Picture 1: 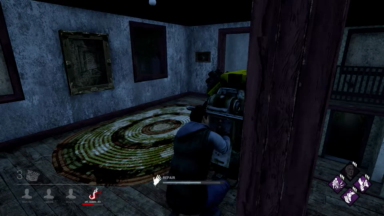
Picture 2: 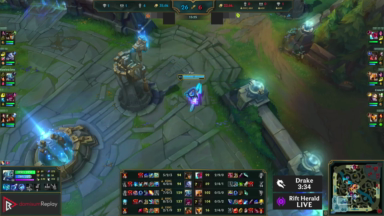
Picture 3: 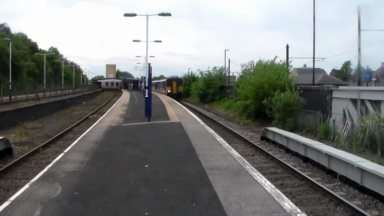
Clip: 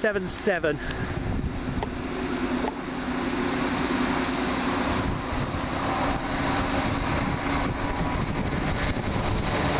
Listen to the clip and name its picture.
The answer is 3